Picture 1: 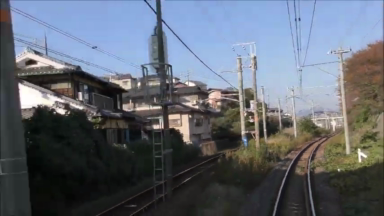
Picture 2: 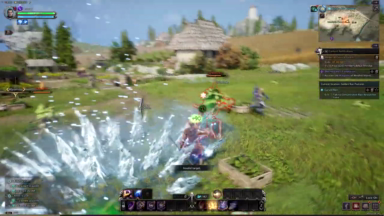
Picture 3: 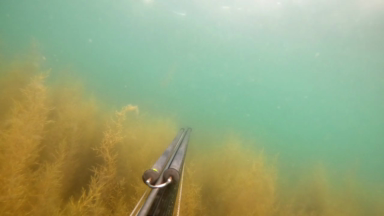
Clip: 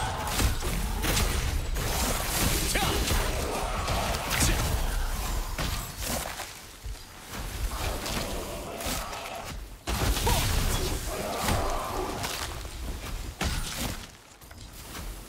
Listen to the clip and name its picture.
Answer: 2